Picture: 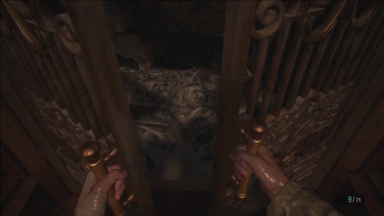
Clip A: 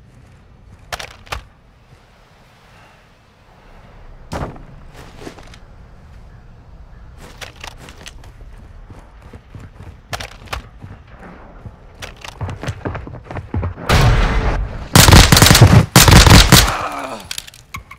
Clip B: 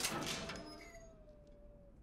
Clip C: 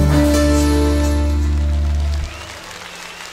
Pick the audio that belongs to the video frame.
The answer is B